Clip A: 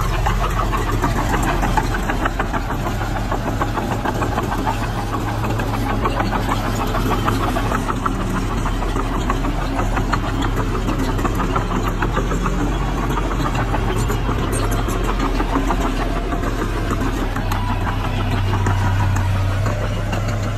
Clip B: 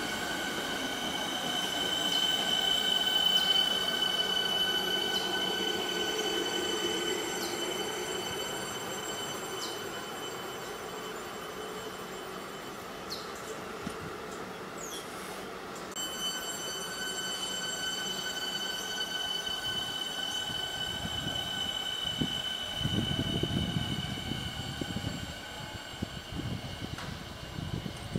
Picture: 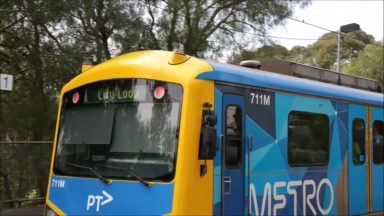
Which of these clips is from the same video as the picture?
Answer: B